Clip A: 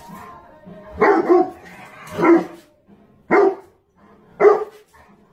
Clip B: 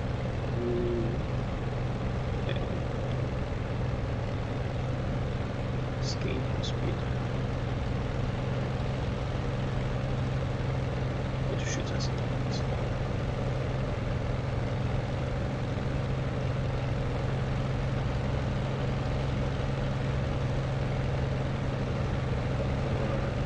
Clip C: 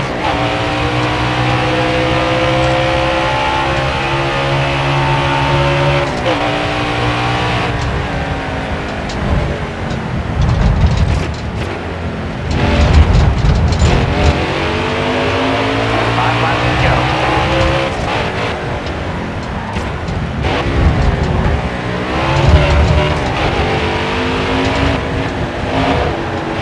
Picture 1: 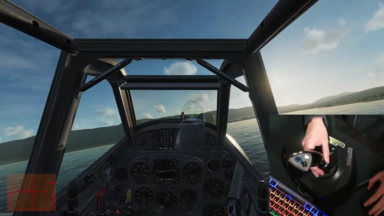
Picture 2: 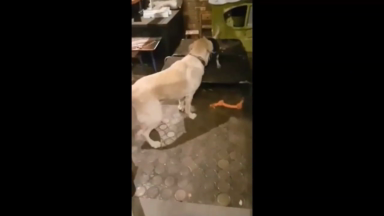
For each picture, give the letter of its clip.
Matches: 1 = B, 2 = A